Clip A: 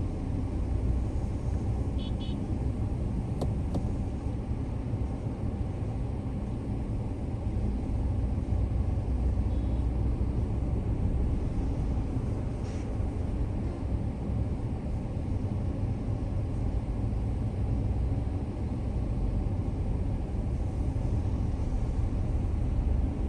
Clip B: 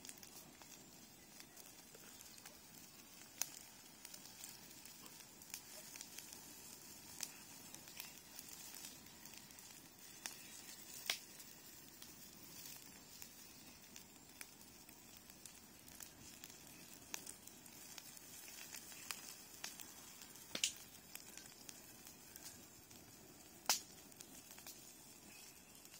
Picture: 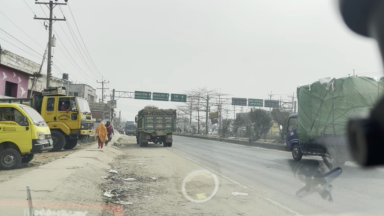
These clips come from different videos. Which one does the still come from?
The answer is A